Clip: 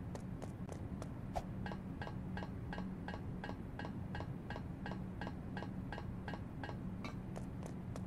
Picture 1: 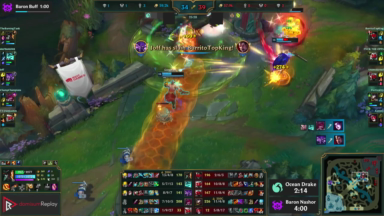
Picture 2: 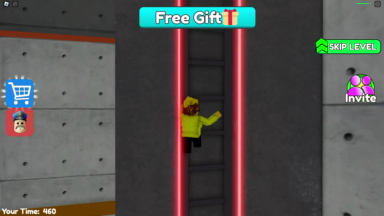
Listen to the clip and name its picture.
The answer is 2